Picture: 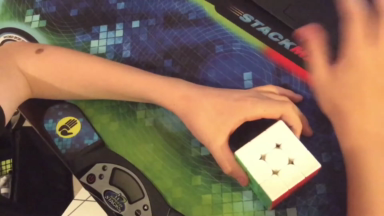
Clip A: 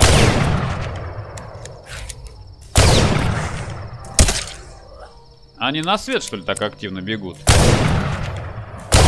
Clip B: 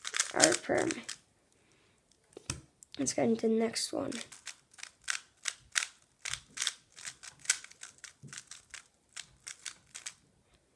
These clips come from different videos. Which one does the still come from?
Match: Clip B